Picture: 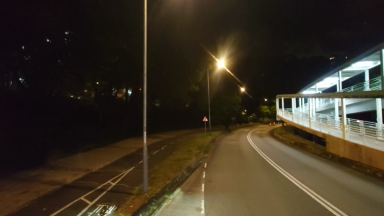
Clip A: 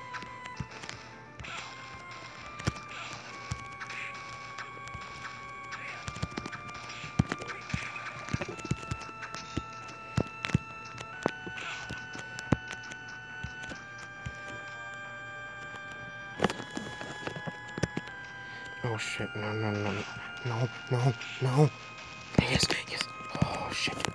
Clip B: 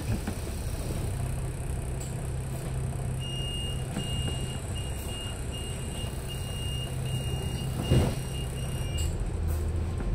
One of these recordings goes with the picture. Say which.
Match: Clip B